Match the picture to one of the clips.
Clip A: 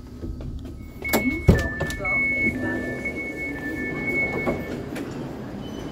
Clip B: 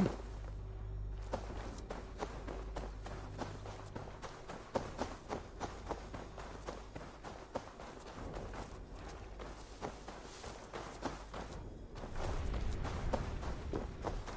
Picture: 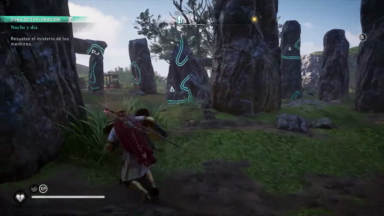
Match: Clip B